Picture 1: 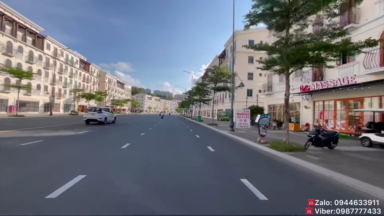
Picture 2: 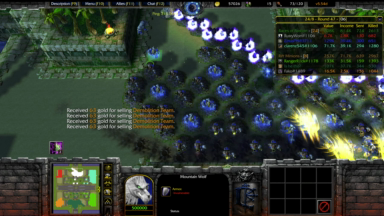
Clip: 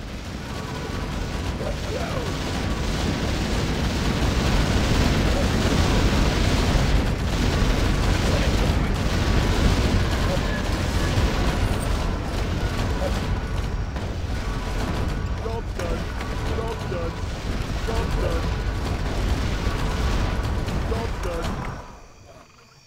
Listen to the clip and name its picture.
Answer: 2